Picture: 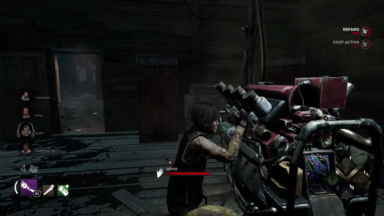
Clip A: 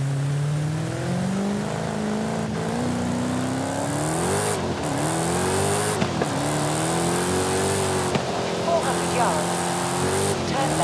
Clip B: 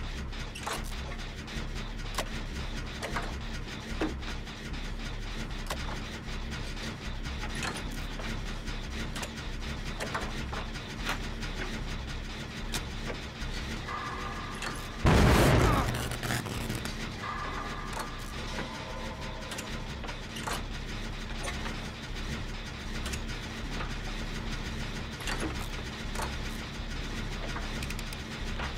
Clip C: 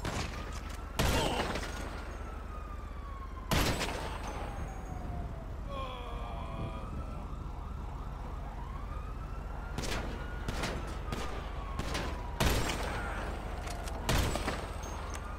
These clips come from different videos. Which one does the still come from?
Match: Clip B